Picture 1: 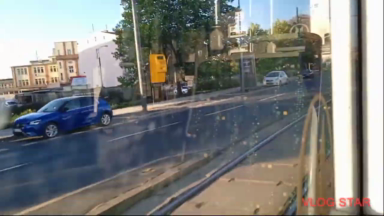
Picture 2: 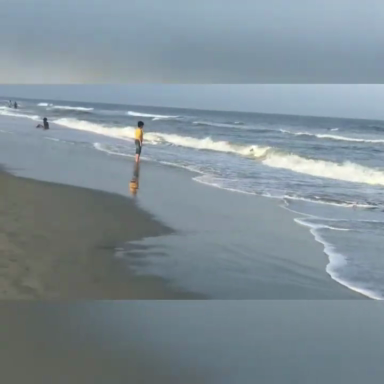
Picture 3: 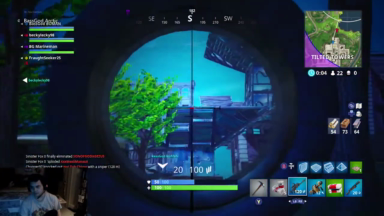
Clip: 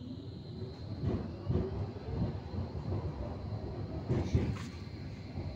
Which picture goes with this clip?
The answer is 1